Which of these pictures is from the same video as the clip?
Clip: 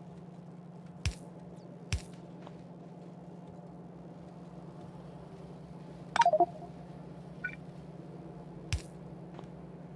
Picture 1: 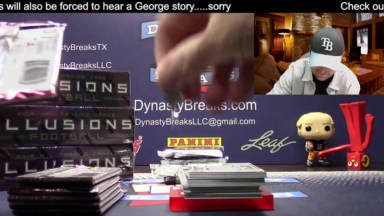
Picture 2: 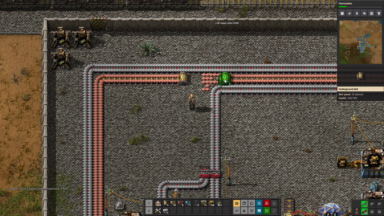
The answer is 2